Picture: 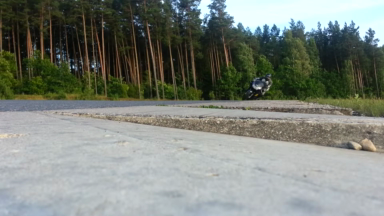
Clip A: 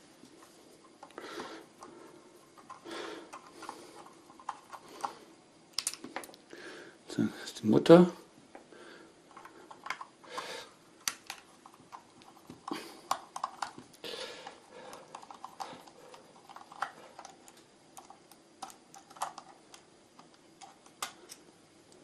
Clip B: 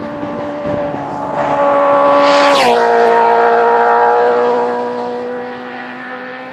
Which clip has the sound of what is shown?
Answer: B